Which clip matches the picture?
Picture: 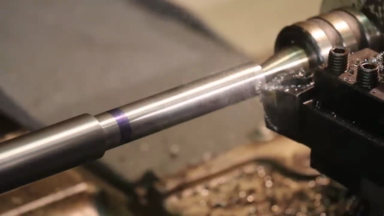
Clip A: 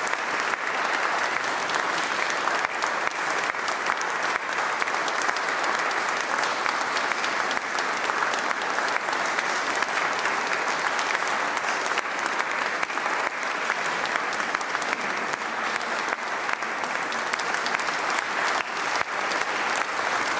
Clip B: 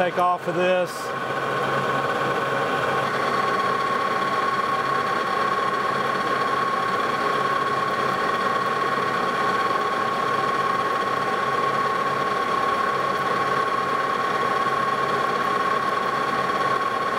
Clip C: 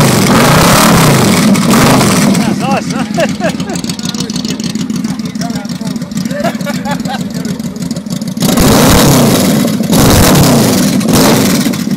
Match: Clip B